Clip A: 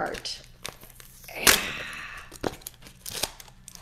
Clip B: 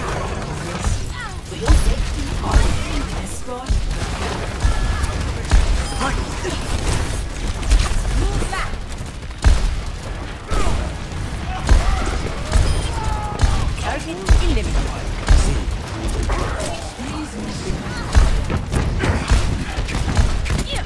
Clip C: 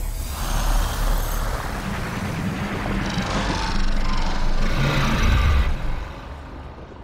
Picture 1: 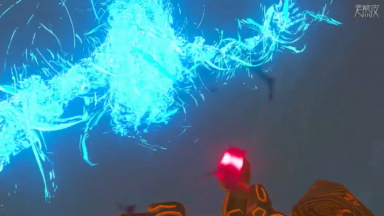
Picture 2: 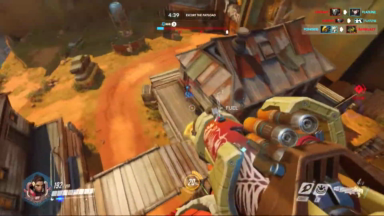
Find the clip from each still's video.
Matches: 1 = C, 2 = B